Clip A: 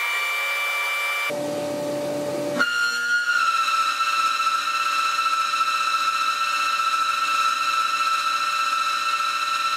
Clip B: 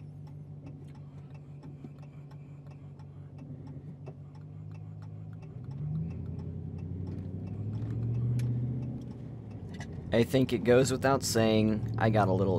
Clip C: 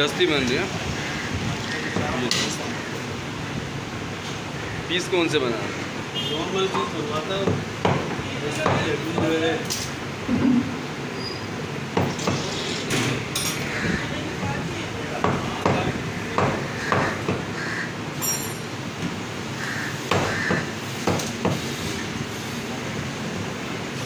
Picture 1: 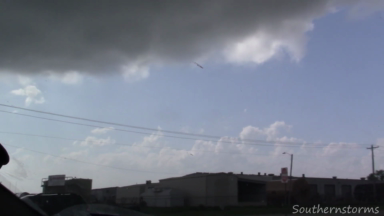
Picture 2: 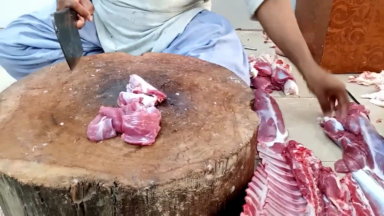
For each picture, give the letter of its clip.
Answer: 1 B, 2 C